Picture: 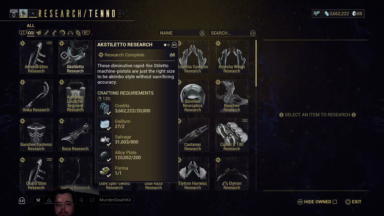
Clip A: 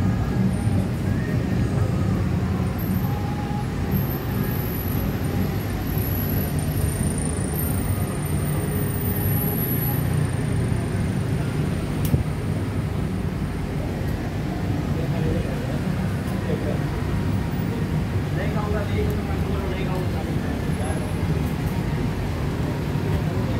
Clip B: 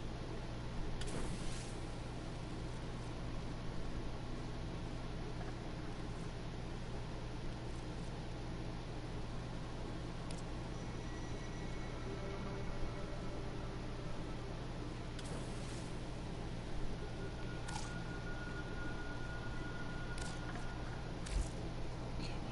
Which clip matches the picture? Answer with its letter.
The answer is B